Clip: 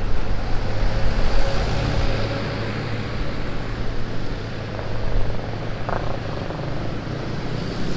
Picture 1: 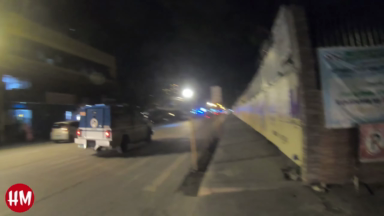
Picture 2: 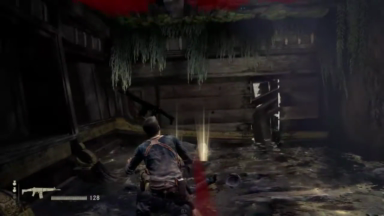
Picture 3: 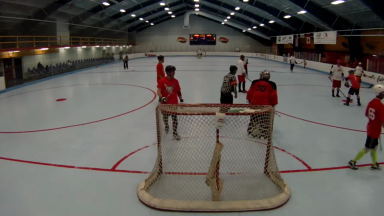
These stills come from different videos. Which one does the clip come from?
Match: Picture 1